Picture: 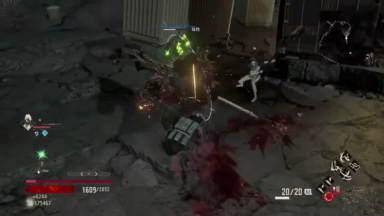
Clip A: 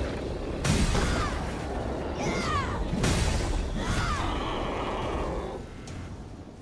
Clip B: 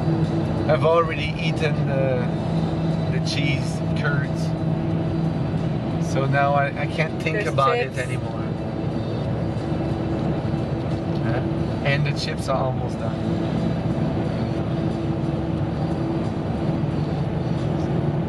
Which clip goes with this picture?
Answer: A